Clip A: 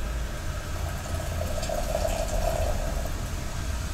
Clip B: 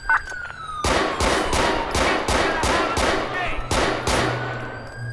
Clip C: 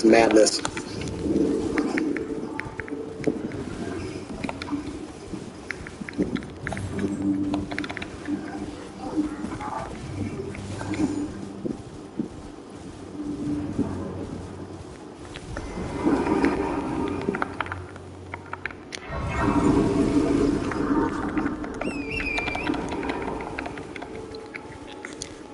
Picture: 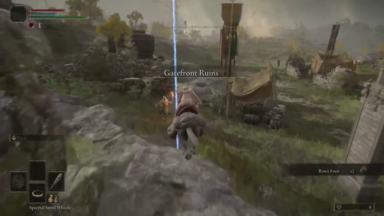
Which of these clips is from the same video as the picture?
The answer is C